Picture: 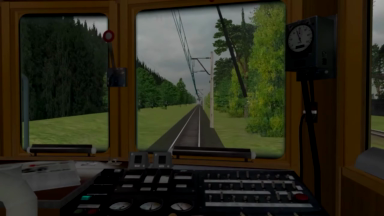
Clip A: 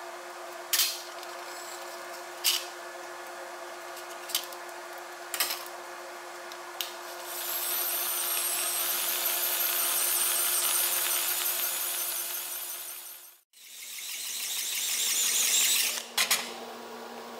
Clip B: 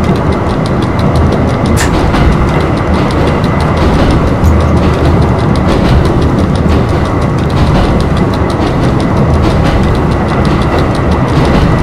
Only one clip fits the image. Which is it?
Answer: B